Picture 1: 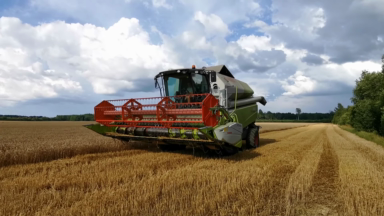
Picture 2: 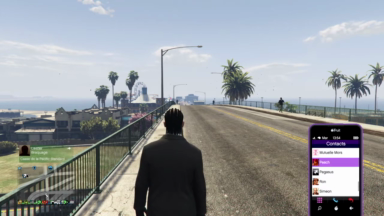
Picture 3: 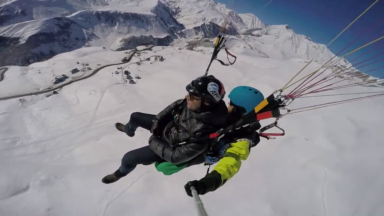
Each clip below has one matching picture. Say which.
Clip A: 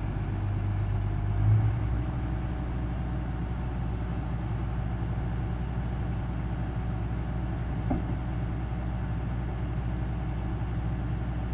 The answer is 1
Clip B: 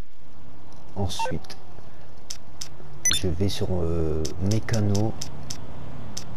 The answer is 2